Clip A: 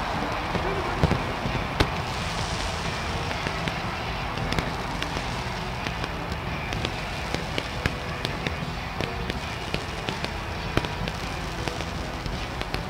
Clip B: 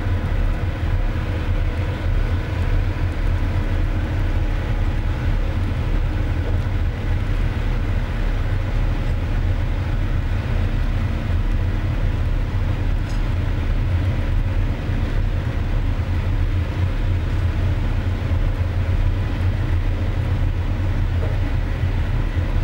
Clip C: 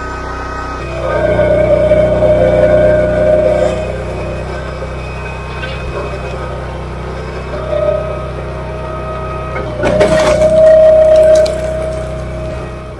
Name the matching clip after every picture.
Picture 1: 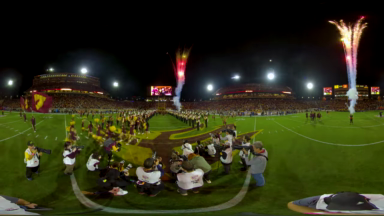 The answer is A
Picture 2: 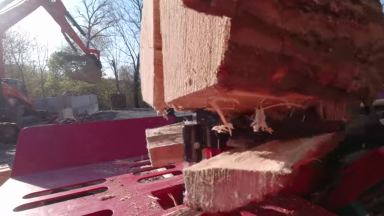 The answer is C